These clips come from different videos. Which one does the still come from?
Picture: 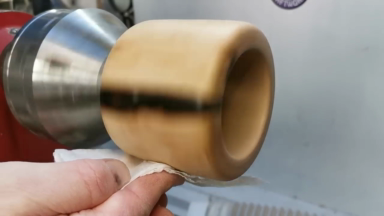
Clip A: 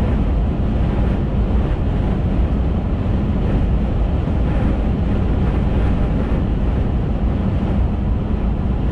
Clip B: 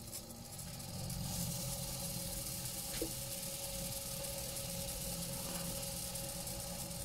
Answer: B